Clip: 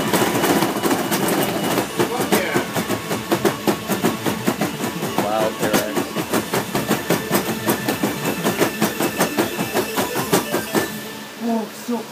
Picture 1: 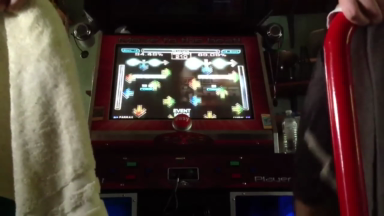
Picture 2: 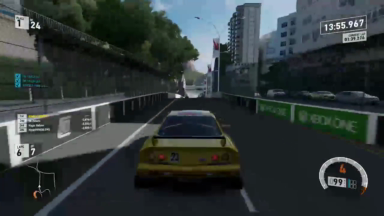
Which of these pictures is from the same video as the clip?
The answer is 1